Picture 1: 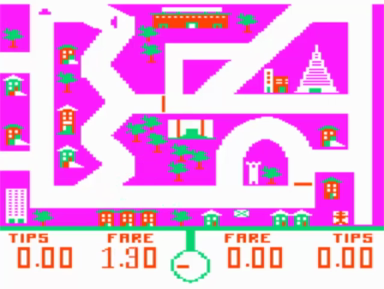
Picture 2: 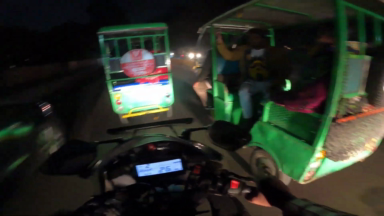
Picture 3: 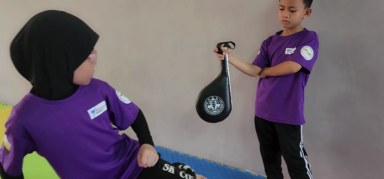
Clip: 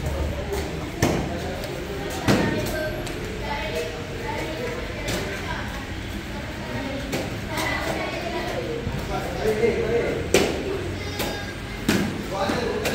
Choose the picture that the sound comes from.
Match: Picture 3